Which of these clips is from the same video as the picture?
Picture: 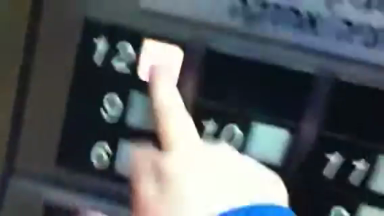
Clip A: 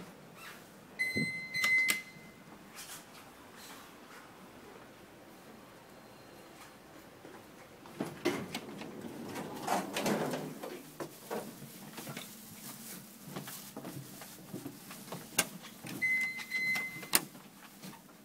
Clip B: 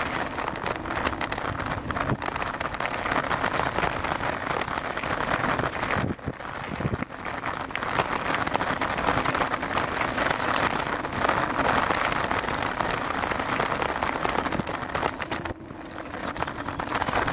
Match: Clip A